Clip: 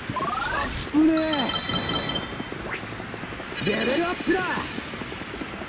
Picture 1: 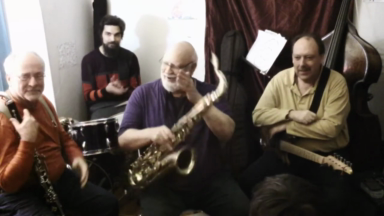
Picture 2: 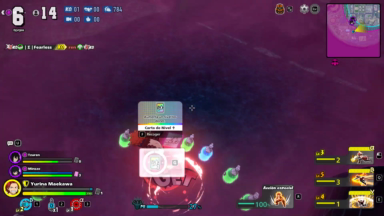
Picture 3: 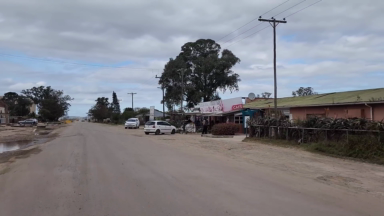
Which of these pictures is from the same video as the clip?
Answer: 2